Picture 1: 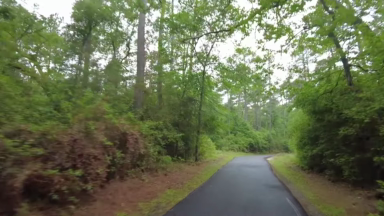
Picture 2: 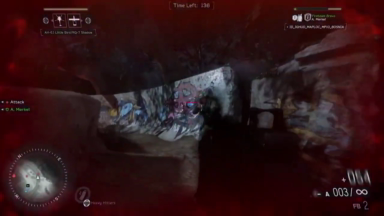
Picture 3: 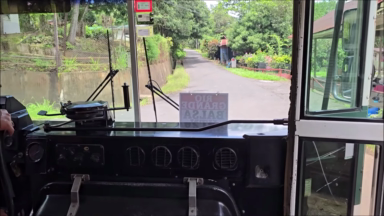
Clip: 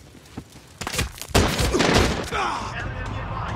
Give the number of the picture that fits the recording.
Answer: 2